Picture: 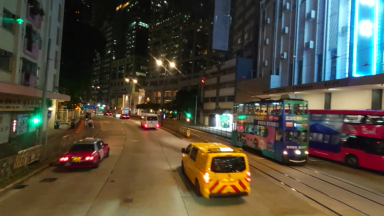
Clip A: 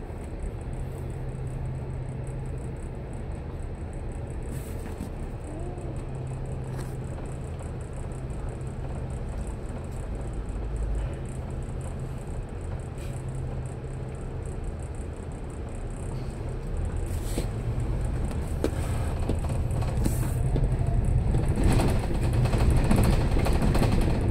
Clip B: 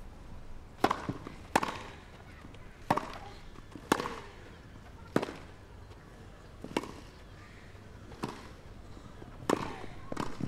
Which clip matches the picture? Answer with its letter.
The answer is A